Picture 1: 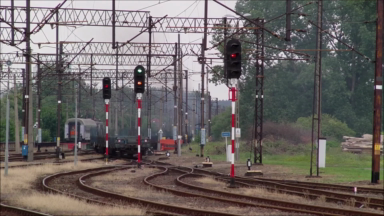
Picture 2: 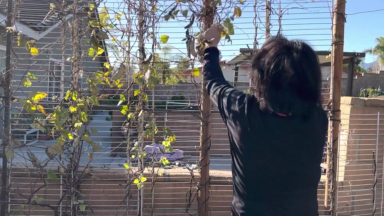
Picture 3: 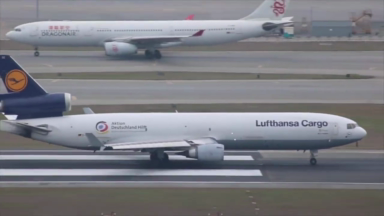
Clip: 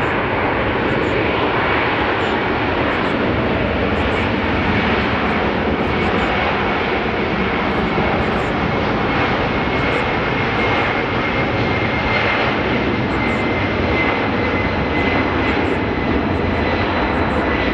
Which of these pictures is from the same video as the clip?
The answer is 3